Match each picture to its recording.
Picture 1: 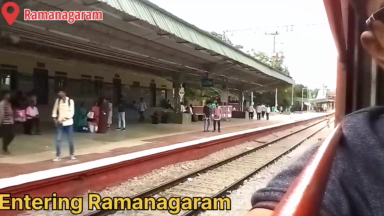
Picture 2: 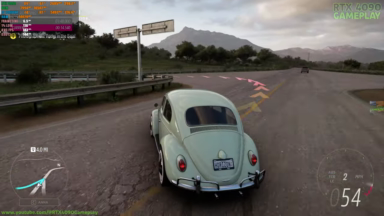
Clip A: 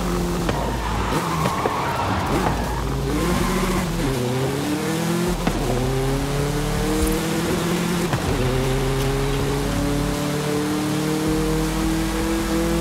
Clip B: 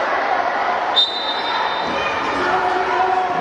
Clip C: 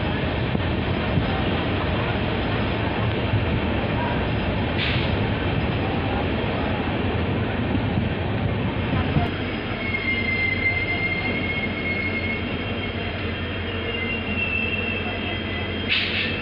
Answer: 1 C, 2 A